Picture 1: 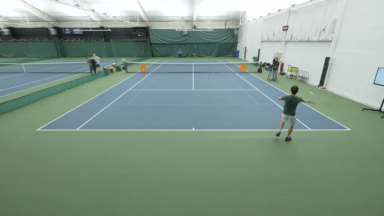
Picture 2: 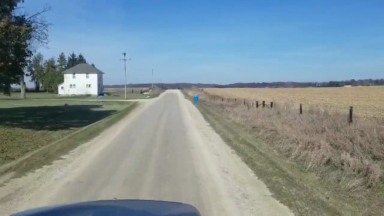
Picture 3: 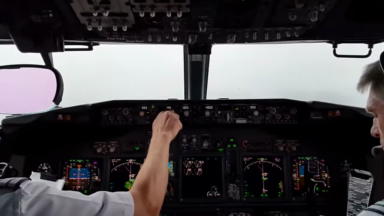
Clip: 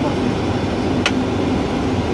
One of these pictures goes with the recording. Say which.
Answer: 3